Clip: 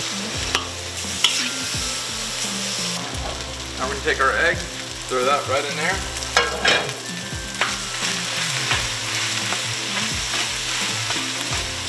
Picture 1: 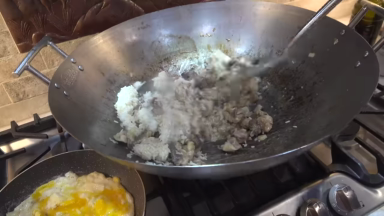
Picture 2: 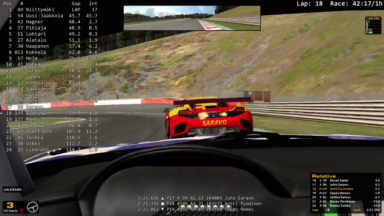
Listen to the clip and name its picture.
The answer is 1